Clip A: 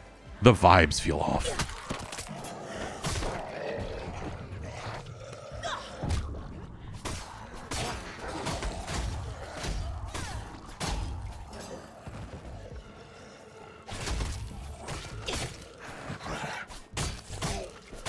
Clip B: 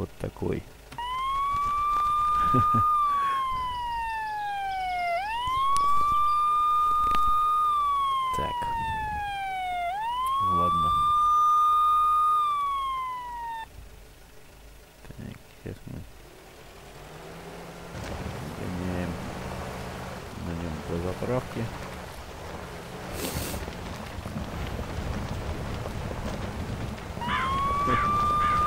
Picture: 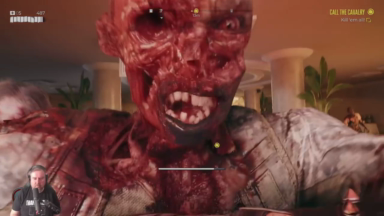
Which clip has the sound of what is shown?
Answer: A